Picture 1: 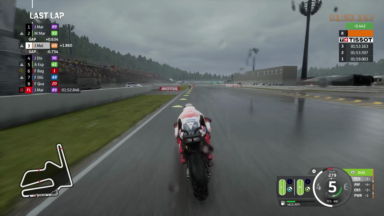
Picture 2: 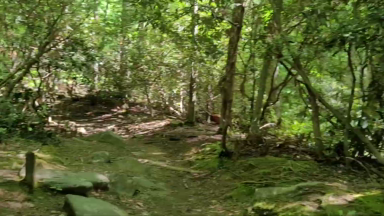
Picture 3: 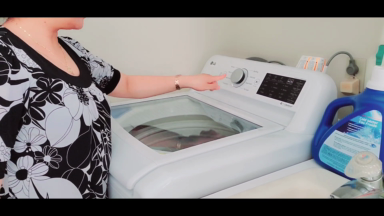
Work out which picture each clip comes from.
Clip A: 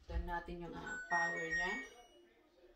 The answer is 3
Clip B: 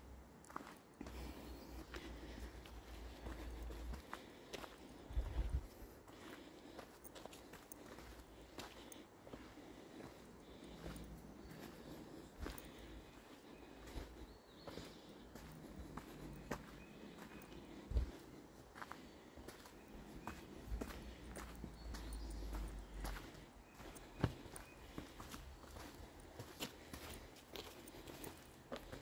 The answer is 2